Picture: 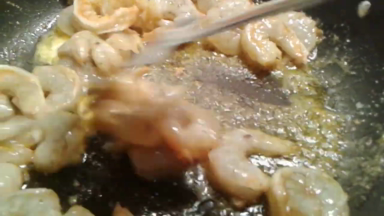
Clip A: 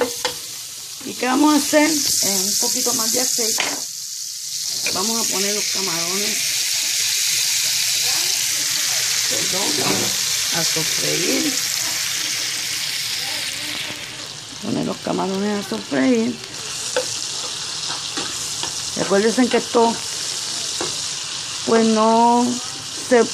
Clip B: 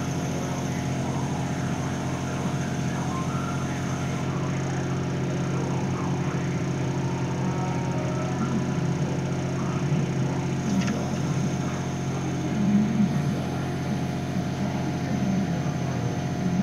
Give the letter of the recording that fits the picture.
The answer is A